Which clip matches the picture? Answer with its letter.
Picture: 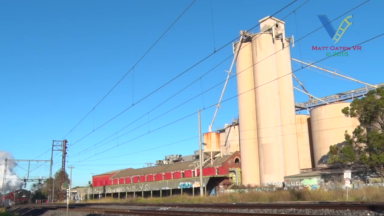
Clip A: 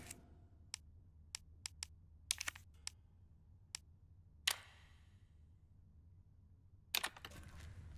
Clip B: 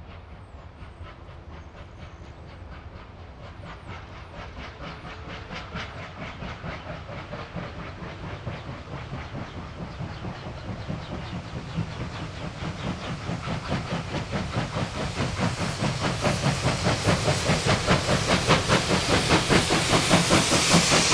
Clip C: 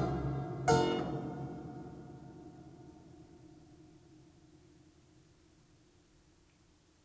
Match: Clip B